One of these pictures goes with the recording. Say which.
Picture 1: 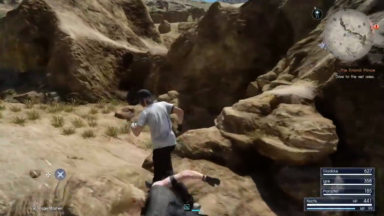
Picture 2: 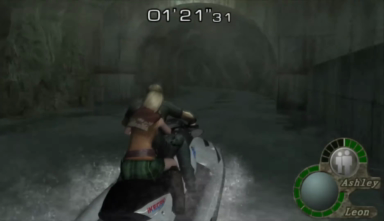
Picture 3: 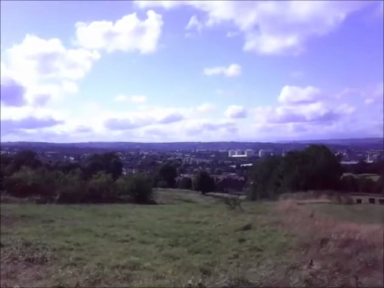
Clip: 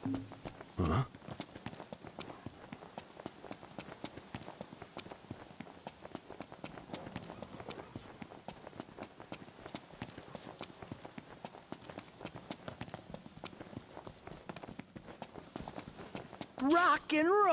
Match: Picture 1